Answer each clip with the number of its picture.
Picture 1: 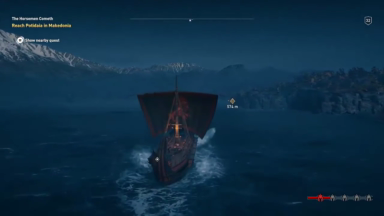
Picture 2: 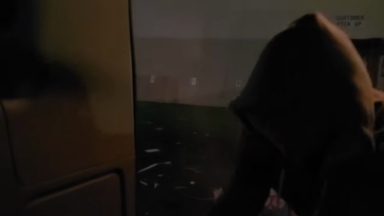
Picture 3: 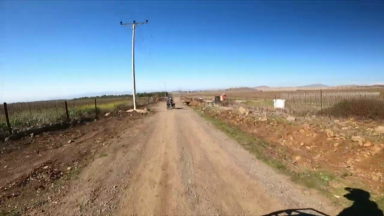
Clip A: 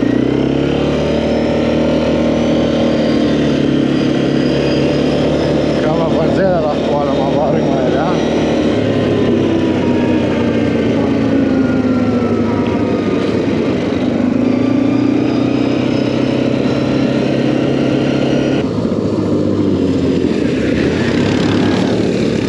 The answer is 3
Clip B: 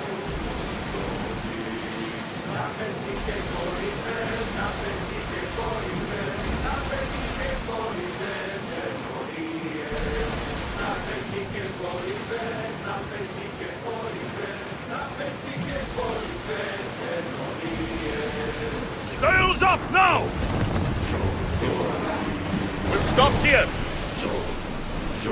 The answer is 1